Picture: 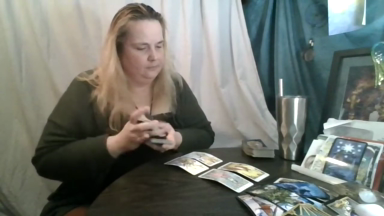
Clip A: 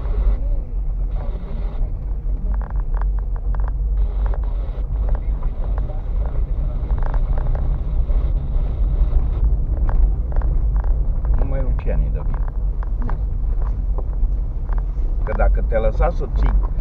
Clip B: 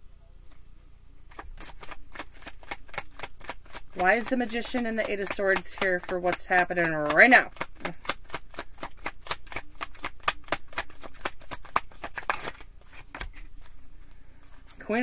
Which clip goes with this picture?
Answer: B